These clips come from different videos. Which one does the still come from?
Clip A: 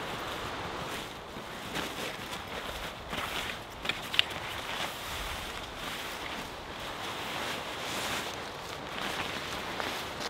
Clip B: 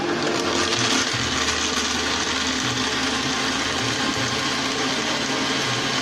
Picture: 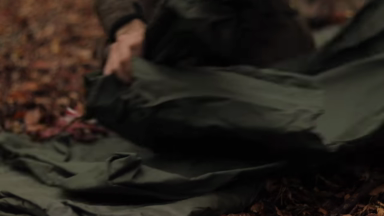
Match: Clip A